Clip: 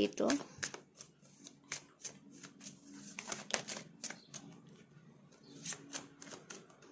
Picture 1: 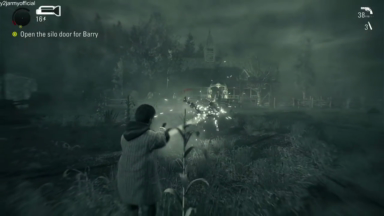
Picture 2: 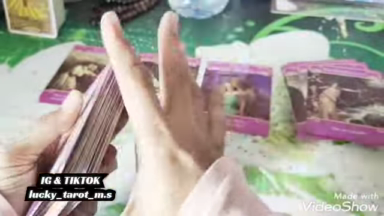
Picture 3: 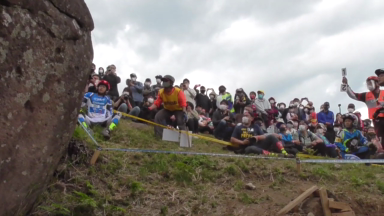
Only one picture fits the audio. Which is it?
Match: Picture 2